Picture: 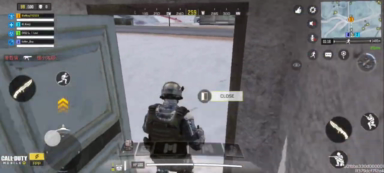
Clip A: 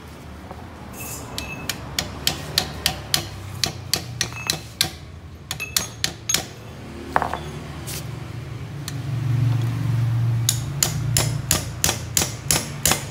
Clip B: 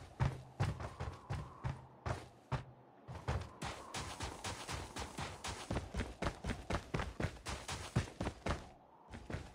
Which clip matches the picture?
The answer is B